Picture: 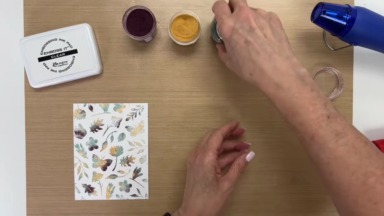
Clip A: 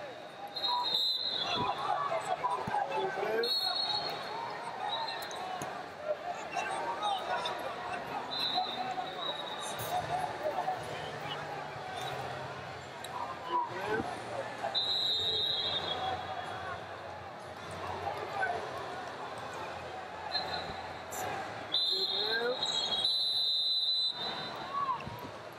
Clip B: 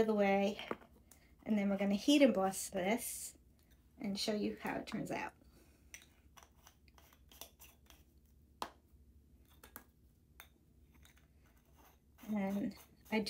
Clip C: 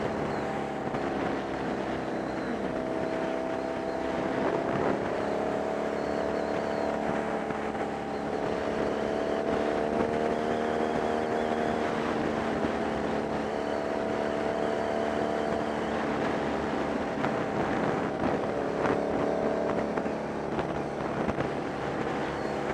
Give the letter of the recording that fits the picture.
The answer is B